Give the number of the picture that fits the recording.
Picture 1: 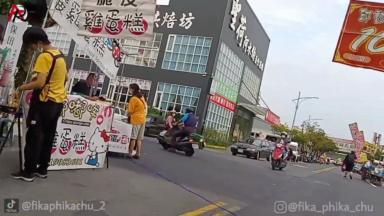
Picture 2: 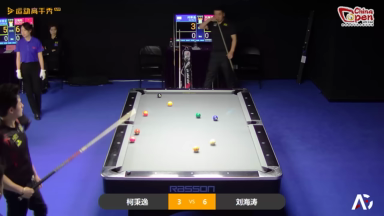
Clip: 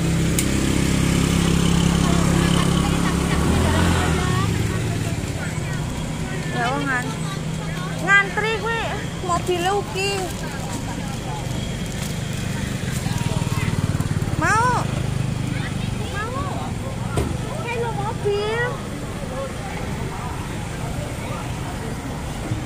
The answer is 1